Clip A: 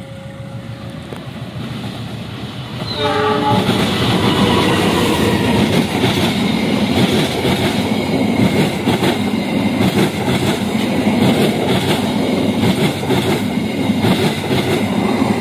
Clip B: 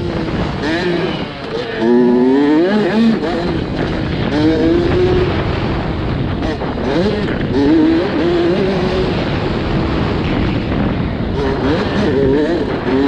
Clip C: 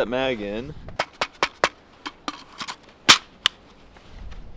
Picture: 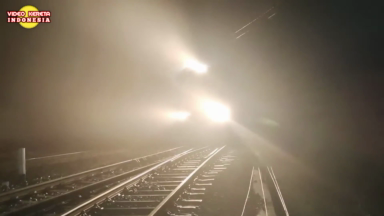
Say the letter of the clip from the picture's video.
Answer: A